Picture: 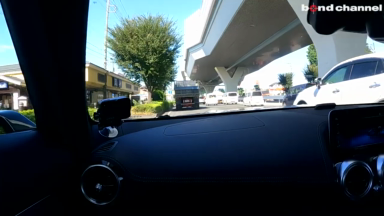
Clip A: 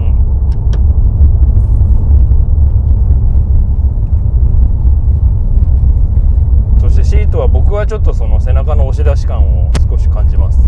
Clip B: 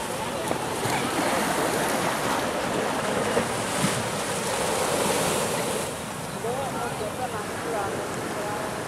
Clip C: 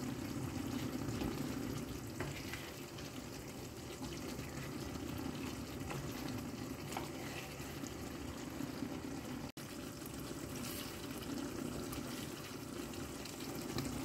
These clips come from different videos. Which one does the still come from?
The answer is A